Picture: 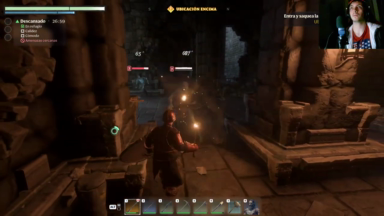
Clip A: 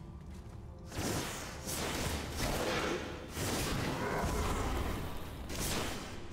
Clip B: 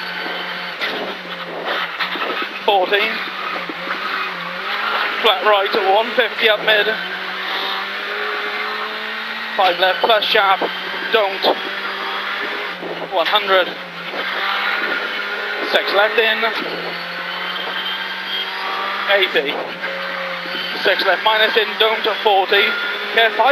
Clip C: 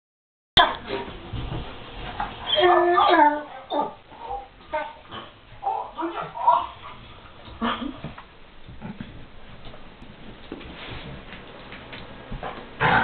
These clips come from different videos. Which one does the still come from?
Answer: A